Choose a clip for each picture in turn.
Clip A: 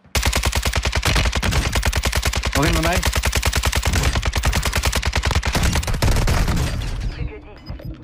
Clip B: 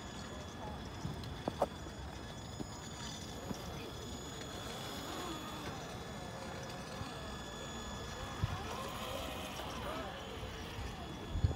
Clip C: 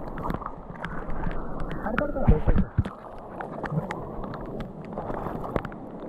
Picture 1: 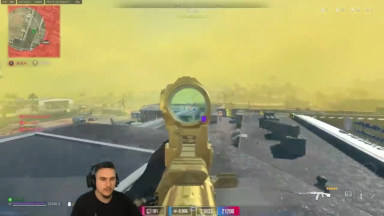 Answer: A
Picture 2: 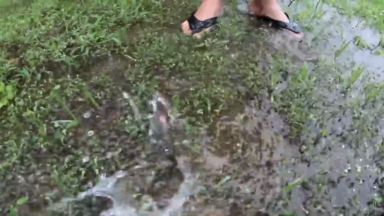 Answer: C